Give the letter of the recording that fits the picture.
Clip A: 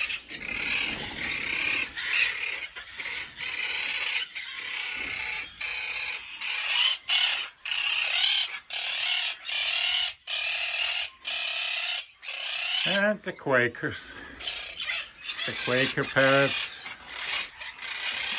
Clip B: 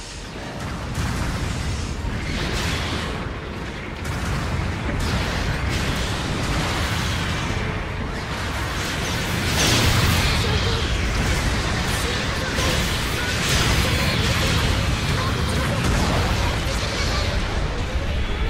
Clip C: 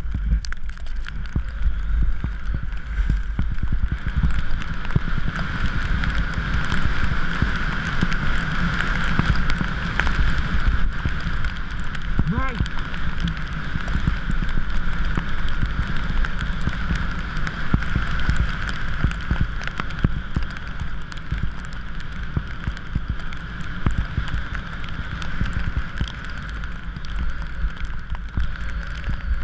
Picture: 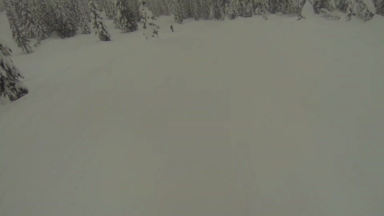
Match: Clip C